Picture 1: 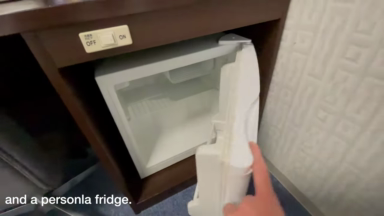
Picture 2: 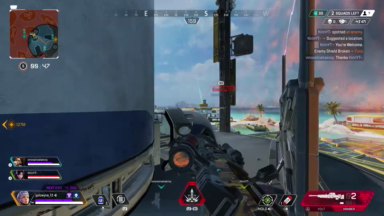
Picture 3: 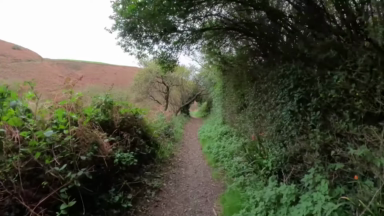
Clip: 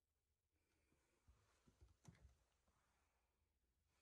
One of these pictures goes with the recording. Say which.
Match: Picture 1